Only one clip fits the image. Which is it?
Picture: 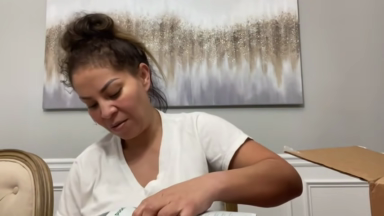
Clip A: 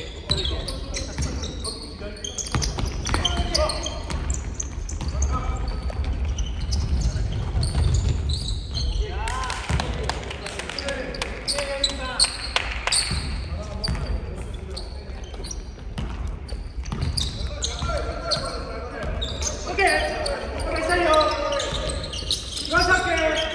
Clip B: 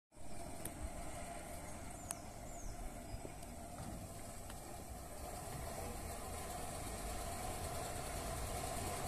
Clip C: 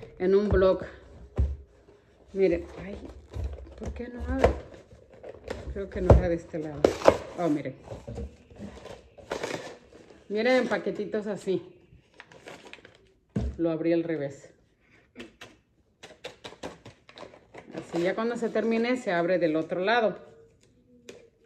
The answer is C